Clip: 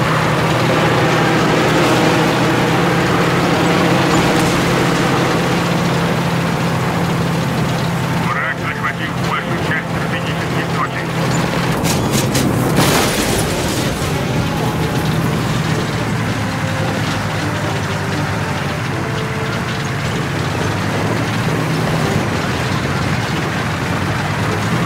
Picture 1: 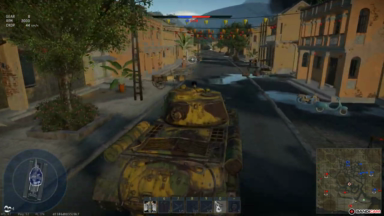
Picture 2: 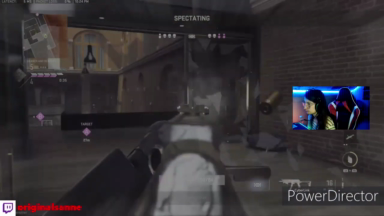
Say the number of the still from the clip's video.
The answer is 1